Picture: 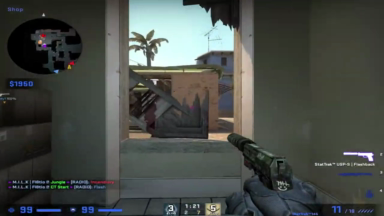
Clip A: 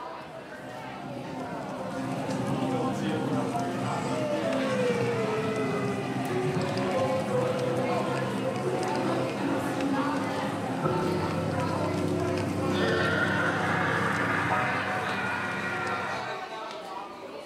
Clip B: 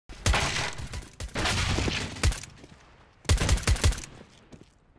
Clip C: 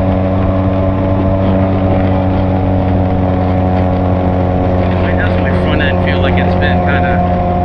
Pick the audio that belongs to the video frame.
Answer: B